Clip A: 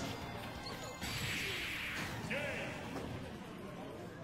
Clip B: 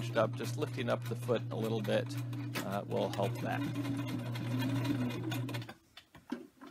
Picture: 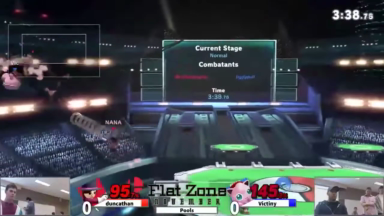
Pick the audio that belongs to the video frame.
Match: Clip A